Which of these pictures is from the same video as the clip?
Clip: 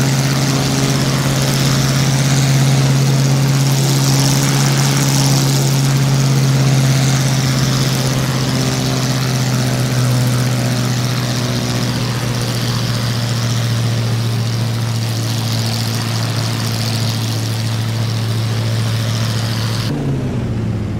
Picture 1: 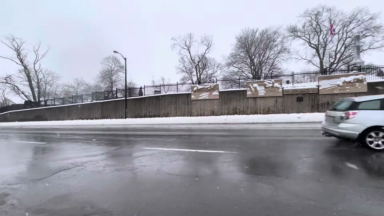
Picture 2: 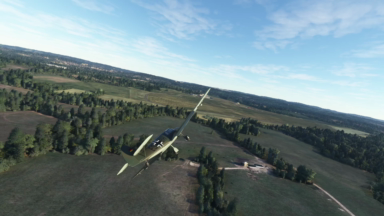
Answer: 2